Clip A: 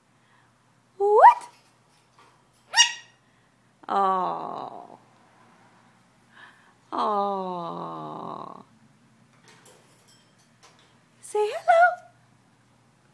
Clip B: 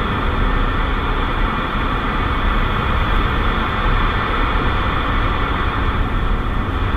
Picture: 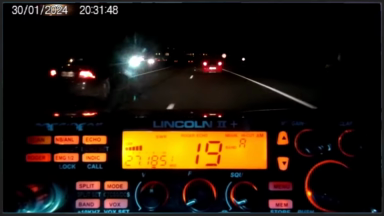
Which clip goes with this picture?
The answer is B